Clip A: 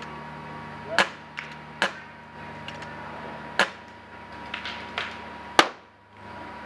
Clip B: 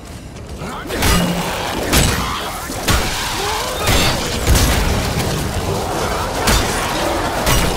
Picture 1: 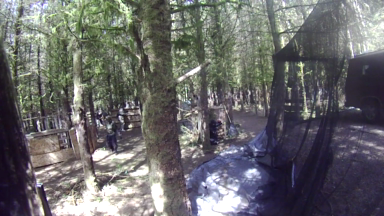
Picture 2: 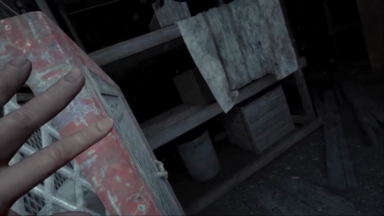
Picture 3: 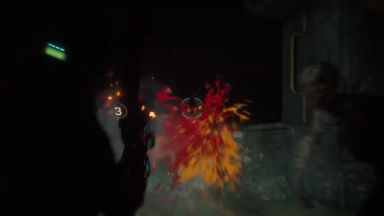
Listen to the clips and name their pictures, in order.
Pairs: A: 1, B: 3